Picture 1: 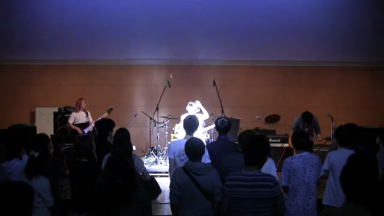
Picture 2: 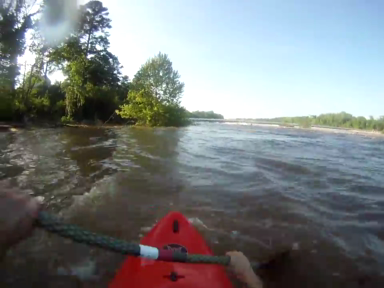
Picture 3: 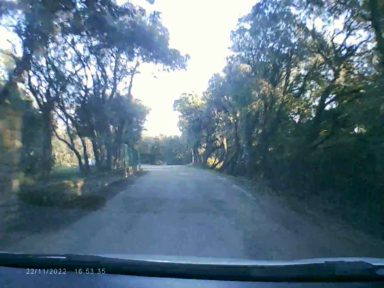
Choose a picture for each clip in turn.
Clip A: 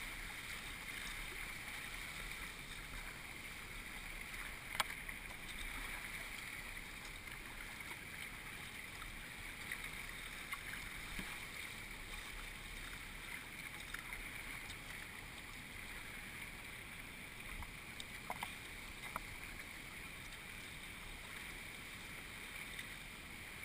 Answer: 2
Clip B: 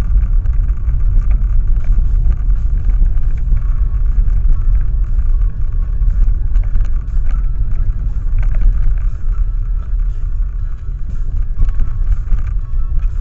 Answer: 3